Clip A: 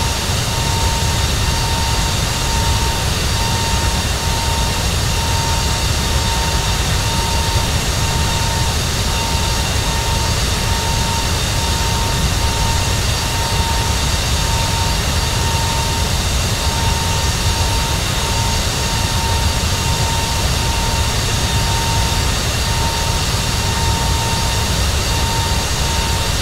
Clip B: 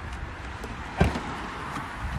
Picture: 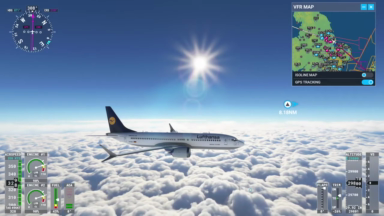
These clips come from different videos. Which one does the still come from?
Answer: A